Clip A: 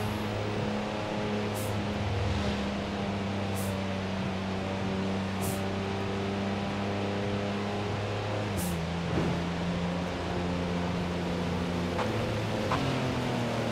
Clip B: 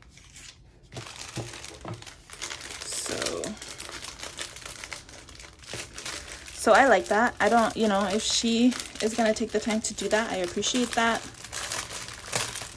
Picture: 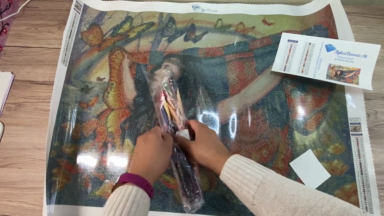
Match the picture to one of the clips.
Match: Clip B